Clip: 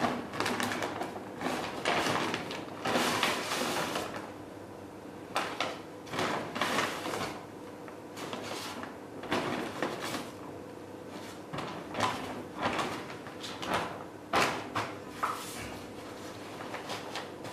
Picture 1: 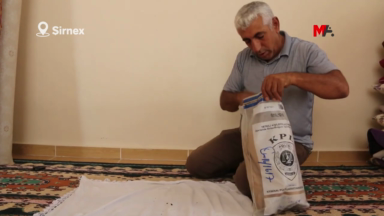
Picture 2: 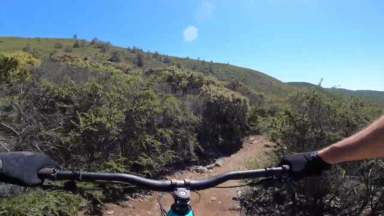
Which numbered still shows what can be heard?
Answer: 1